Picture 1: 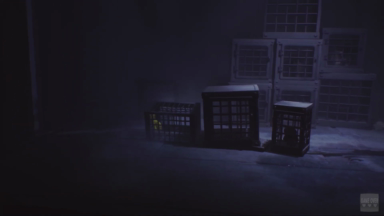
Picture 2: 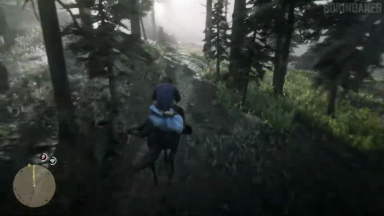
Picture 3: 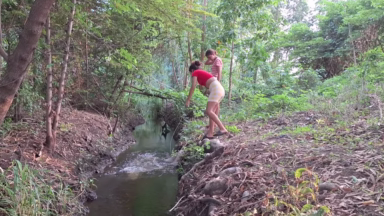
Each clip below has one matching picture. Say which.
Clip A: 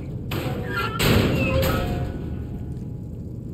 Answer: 1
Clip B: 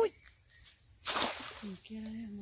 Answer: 3